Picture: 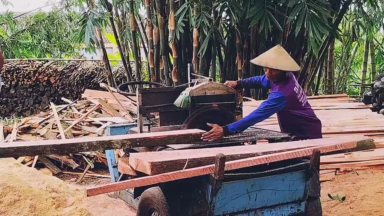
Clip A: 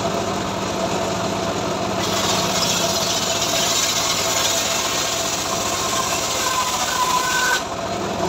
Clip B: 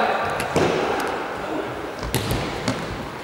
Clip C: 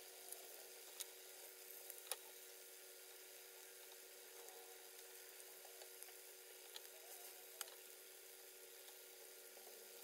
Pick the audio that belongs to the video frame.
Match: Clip A